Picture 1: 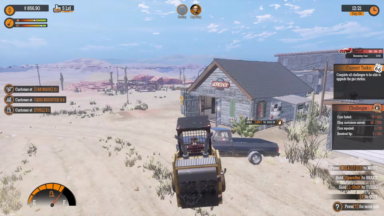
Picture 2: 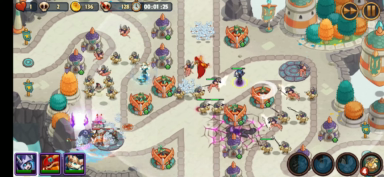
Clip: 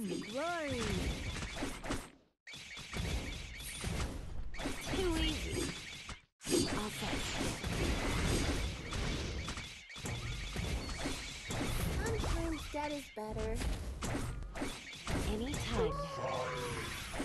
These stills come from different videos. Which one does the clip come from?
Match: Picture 2